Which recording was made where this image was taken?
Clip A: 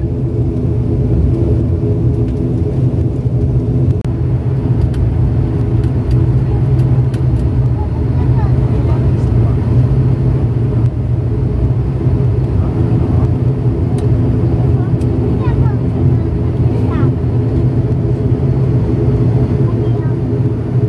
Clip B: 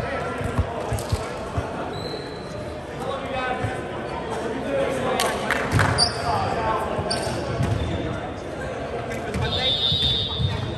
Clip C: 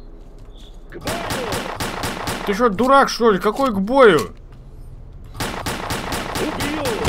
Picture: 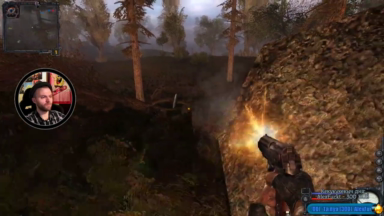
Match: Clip C